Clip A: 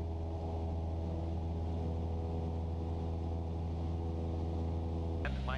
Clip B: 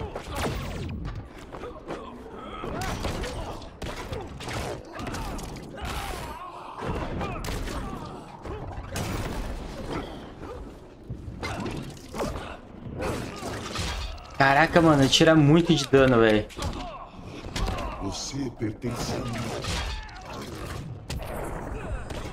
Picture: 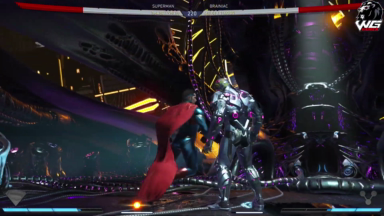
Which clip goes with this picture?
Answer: B